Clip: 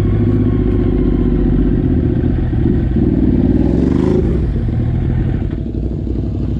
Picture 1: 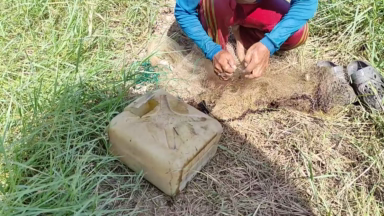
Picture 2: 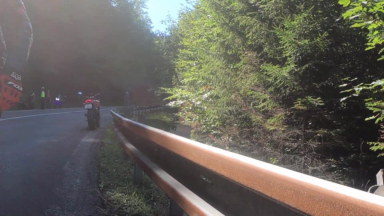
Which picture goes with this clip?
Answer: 2